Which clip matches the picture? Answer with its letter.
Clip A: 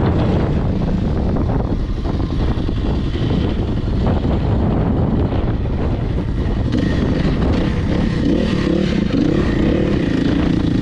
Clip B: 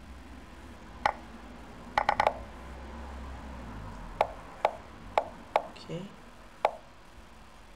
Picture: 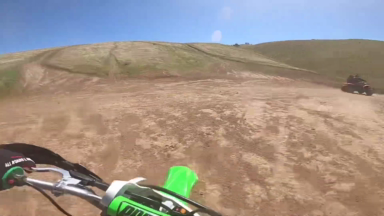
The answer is A